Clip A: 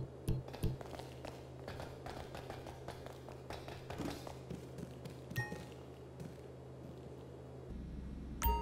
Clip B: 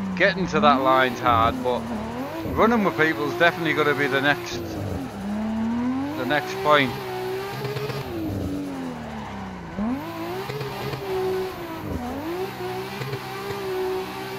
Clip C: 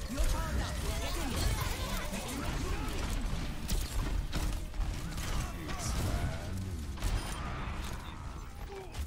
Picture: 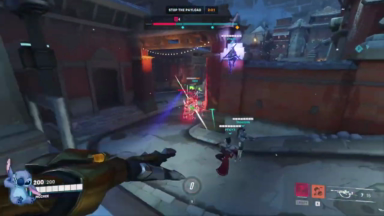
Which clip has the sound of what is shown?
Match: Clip C